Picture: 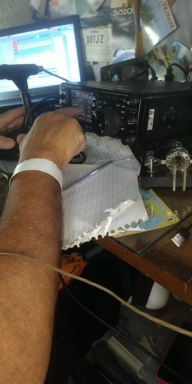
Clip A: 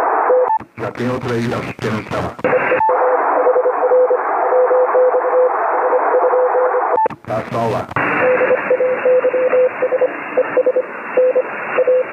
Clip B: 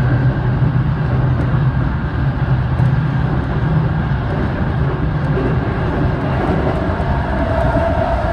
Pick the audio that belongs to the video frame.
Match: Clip A